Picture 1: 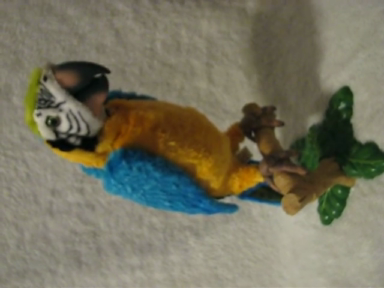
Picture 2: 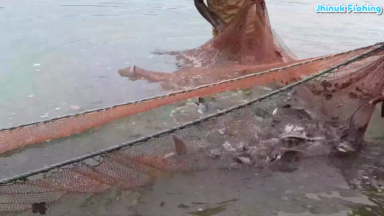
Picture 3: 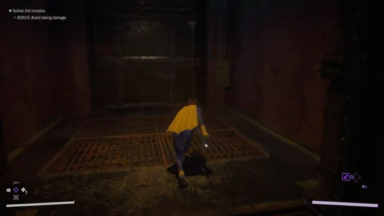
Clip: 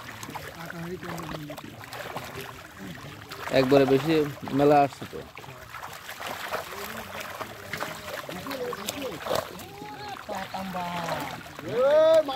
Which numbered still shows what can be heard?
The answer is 2